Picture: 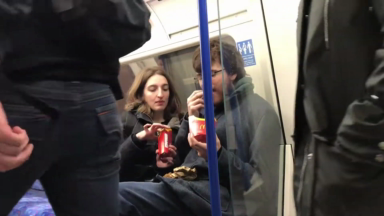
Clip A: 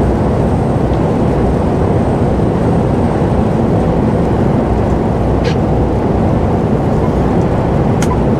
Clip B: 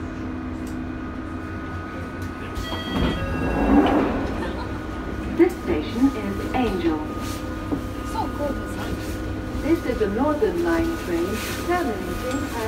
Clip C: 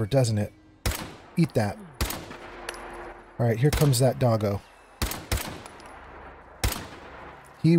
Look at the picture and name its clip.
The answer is B